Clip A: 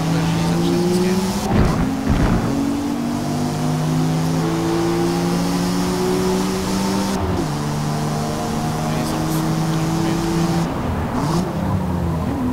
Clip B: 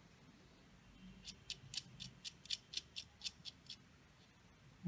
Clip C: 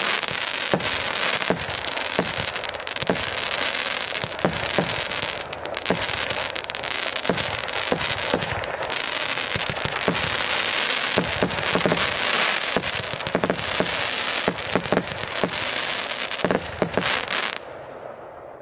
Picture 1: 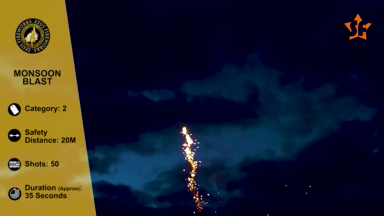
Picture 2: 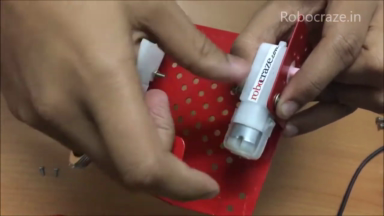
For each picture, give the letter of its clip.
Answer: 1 C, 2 B